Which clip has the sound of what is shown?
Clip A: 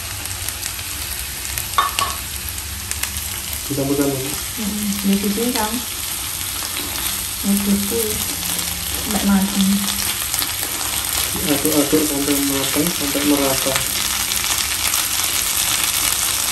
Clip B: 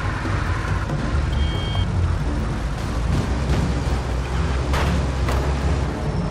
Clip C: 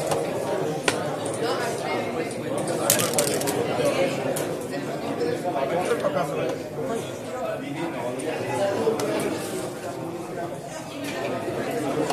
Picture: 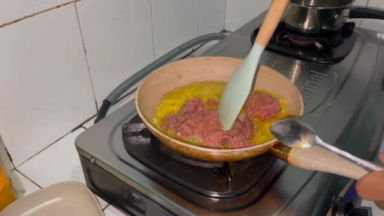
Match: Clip A